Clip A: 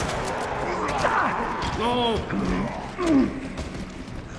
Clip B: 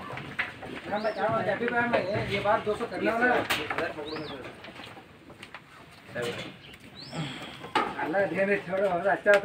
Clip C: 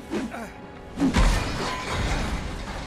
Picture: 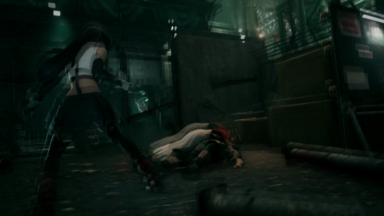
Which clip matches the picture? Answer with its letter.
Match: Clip C